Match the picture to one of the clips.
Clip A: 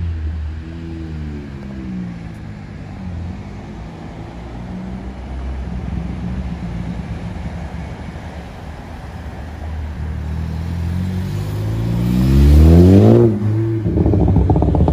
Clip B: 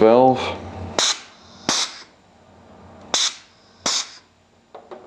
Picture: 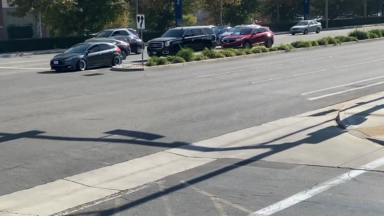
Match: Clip A